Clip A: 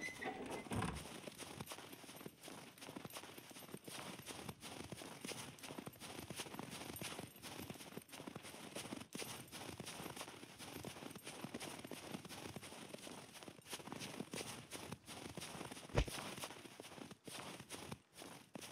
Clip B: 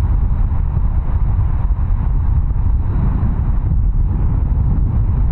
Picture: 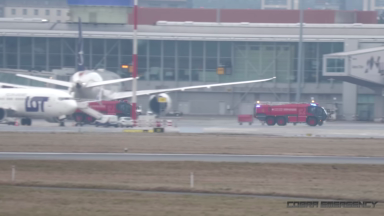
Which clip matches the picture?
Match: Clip B